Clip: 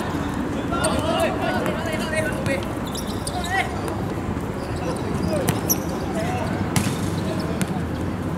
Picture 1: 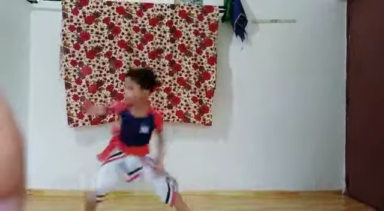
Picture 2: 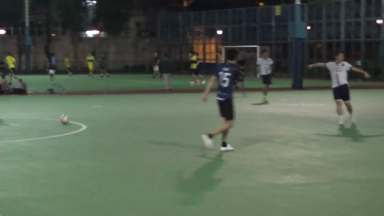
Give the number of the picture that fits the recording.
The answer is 2